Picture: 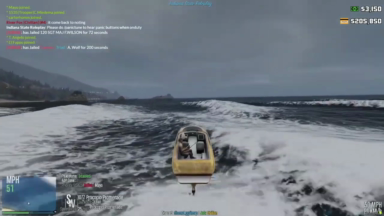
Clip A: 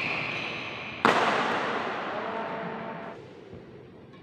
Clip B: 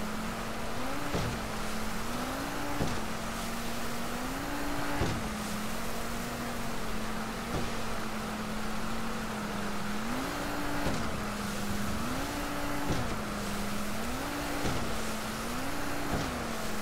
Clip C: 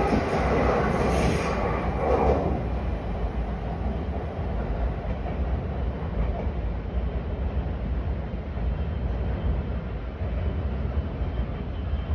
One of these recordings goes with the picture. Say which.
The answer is B